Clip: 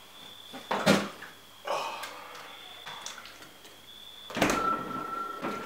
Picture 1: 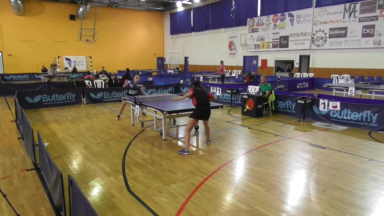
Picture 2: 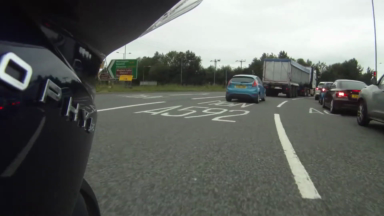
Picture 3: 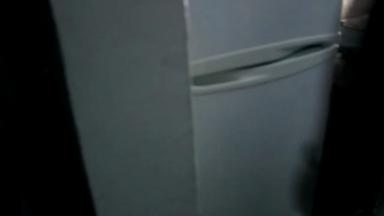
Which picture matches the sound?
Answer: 3